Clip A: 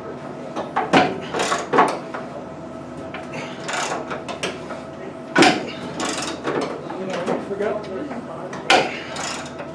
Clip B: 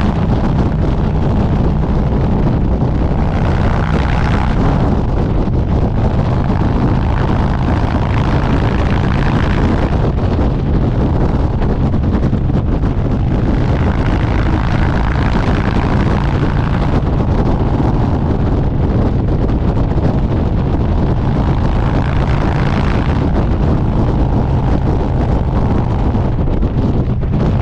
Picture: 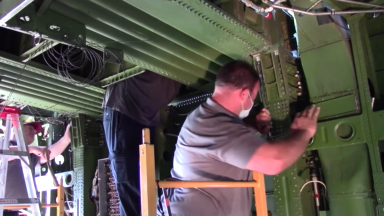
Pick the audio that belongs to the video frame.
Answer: A